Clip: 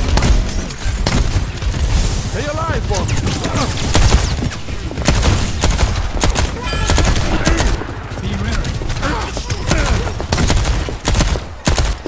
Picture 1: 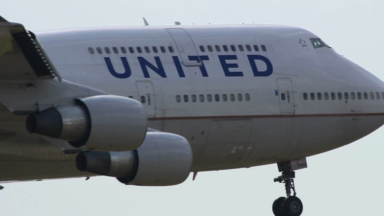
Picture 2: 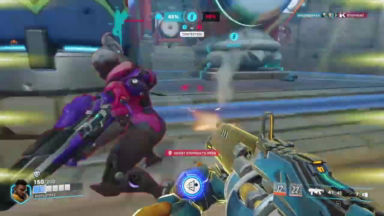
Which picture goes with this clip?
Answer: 2